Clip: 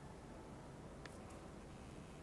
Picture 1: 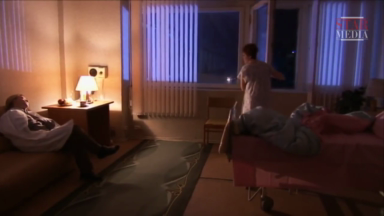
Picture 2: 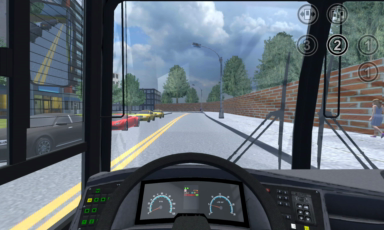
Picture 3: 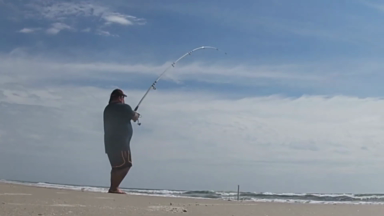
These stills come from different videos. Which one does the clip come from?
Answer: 1